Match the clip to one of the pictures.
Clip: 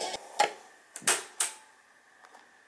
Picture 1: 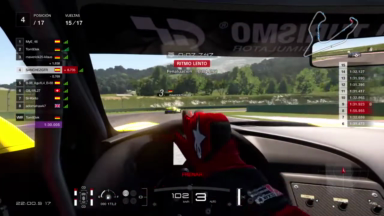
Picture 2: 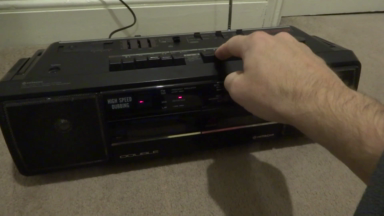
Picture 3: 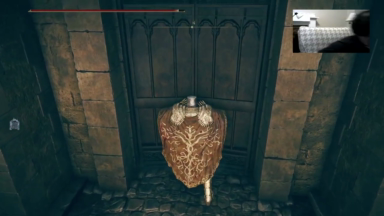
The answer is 2